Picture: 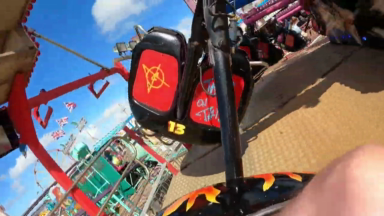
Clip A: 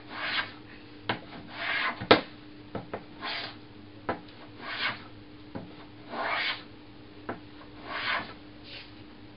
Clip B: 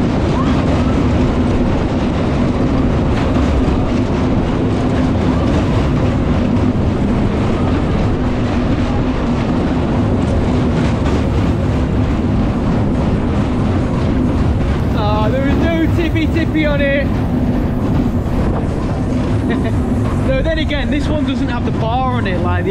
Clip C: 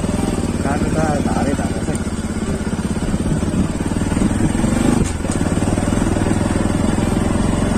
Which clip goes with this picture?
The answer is B